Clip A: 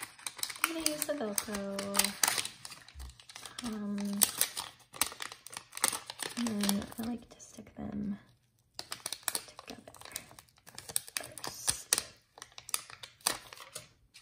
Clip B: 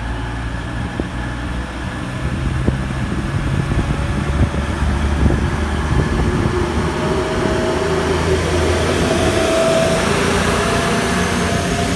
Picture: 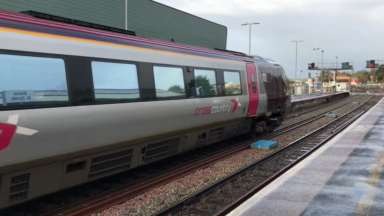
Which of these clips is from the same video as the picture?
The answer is B